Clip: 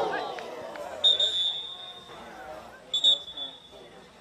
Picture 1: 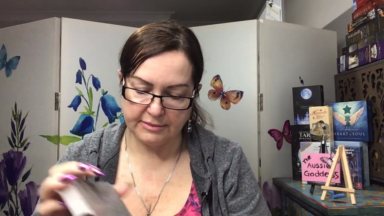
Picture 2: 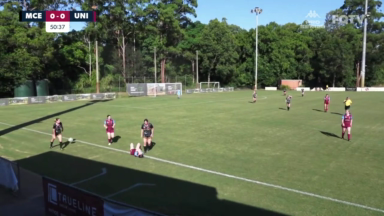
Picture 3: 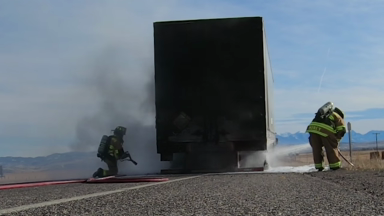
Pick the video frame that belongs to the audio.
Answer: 2